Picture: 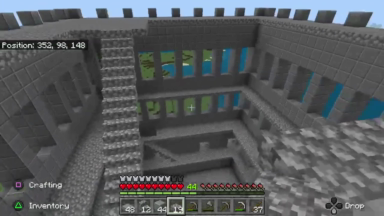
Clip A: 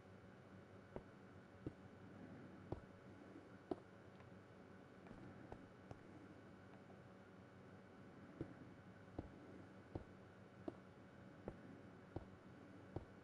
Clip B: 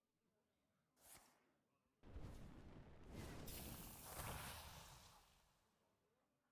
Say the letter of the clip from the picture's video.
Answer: A